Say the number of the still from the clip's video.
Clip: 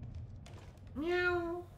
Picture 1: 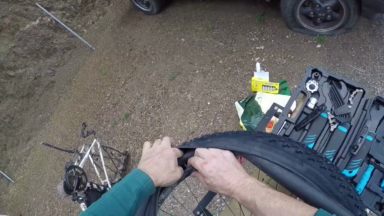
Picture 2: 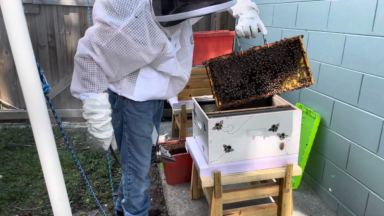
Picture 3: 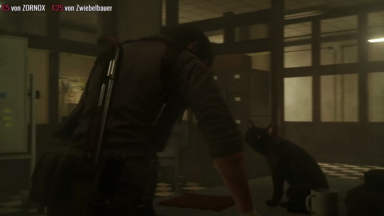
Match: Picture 3